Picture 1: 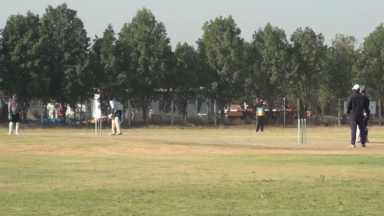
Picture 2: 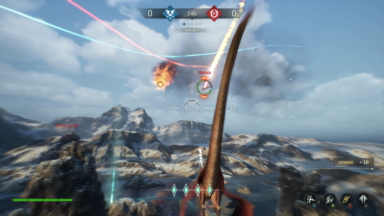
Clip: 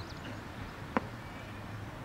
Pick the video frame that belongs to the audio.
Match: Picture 1